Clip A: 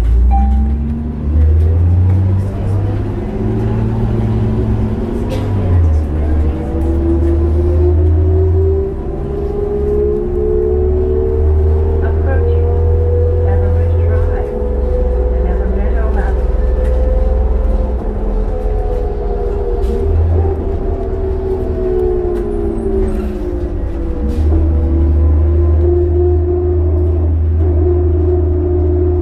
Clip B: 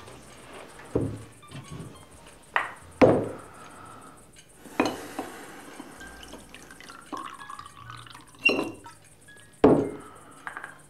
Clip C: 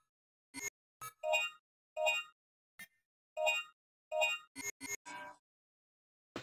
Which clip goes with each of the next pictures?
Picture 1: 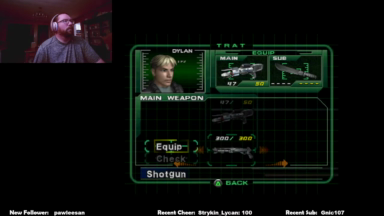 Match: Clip C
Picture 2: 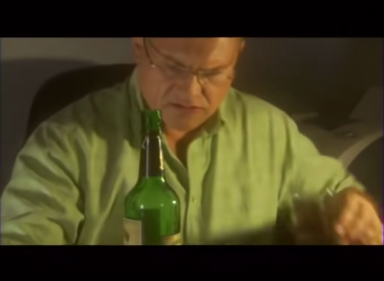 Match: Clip B